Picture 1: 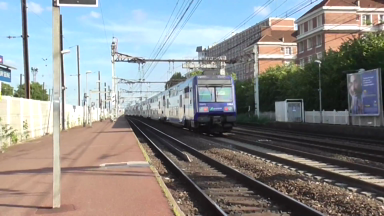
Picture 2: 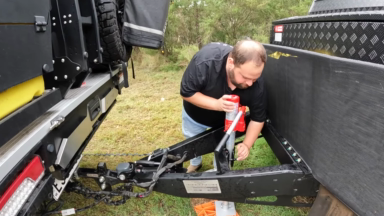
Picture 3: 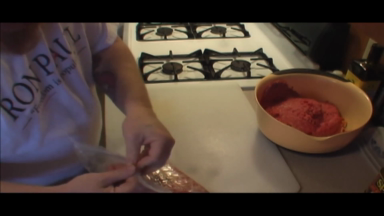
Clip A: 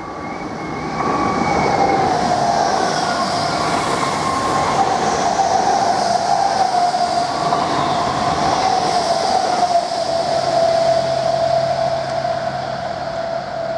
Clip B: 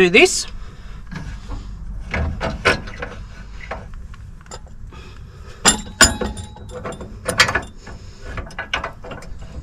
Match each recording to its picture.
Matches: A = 1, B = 2